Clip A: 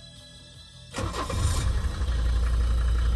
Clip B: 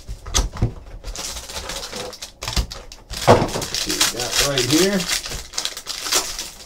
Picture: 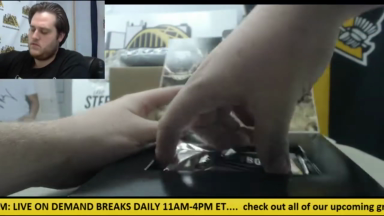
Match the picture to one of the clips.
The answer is B